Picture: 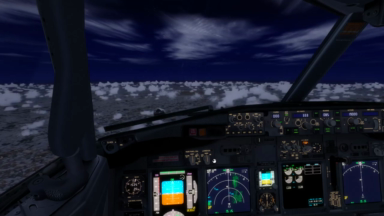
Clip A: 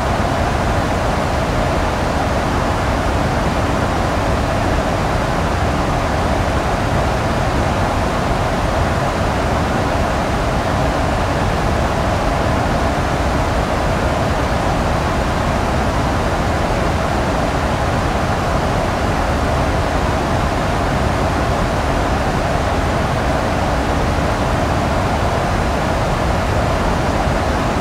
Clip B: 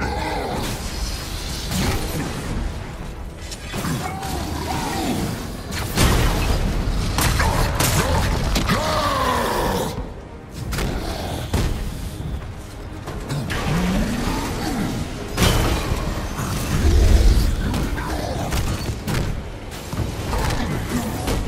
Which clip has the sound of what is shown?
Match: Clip A